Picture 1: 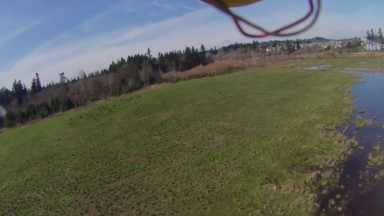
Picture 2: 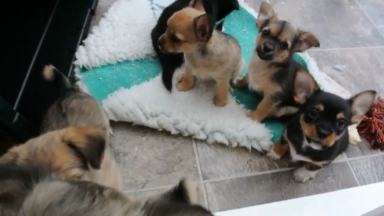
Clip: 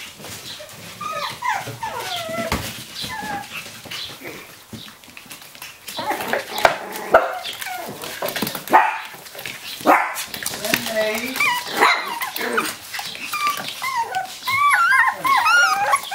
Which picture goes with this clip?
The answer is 2